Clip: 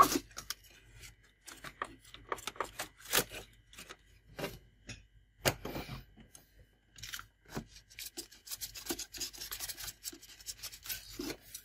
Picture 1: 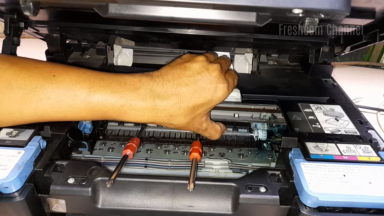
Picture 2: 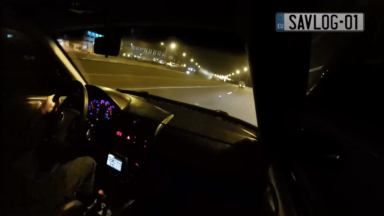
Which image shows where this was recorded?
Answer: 1